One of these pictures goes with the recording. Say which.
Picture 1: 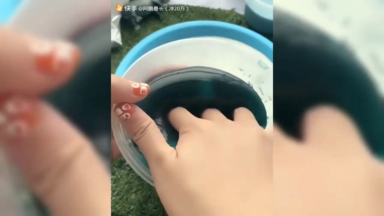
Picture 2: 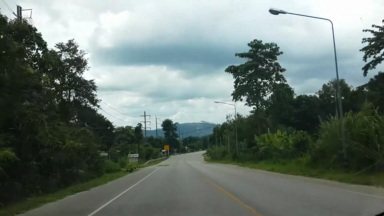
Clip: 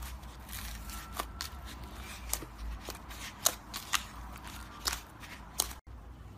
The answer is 1